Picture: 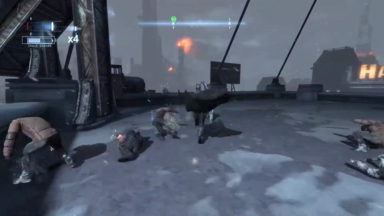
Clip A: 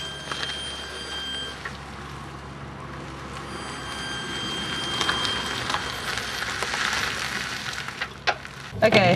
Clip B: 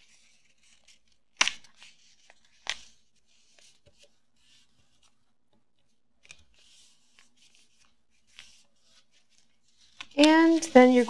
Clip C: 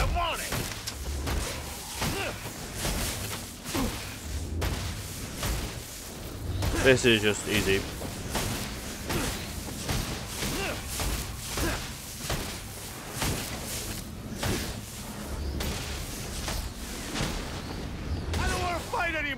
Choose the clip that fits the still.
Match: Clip C